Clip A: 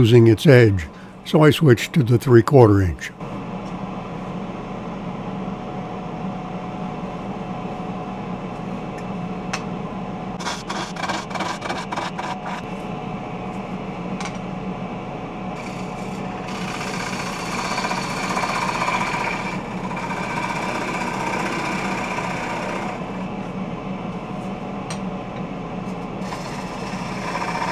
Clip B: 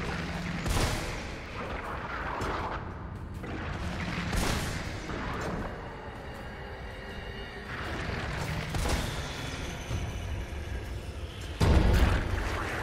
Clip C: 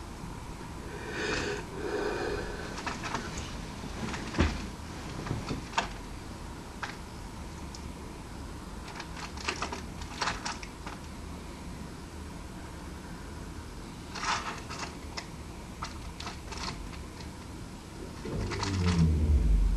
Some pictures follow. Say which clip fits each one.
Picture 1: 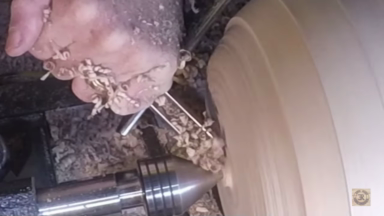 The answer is A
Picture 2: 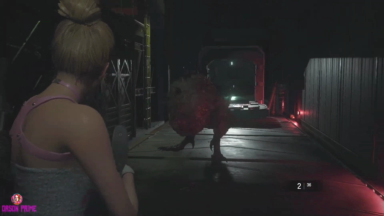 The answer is B